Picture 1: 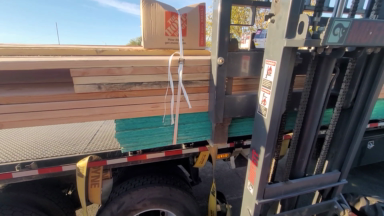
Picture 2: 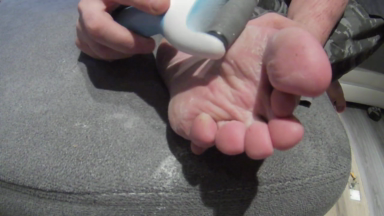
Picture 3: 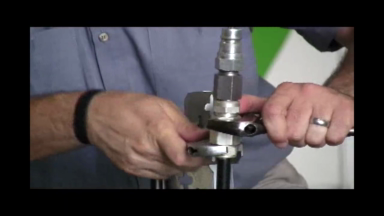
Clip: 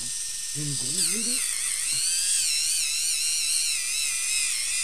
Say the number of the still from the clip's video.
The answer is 2